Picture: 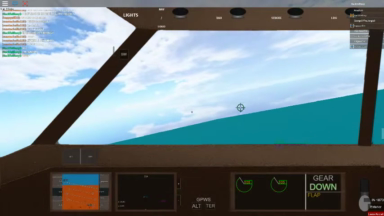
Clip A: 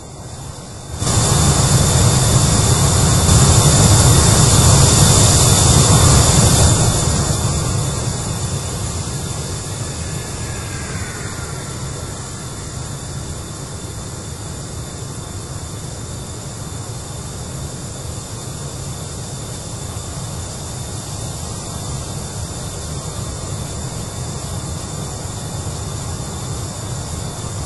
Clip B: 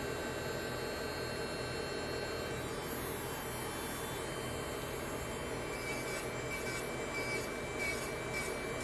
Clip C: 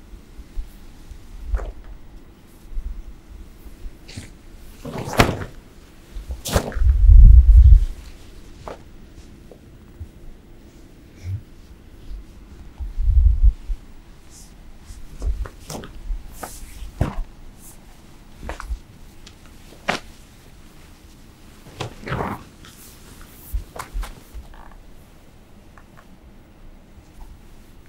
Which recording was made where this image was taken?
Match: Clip A